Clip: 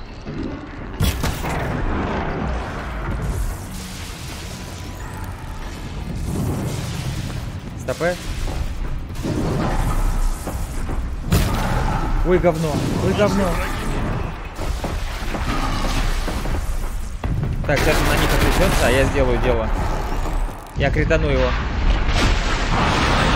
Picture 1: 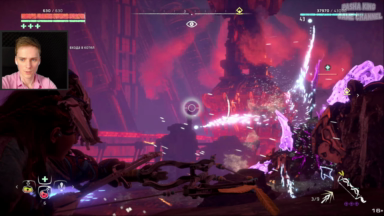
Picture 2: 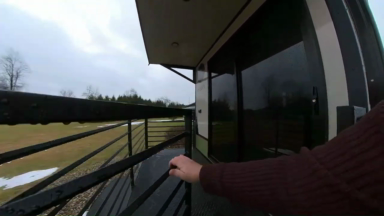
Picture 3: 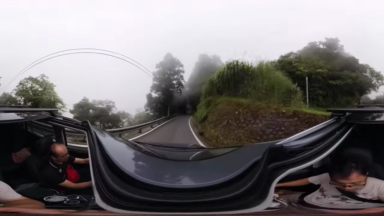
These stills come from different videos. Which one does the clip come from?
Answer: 1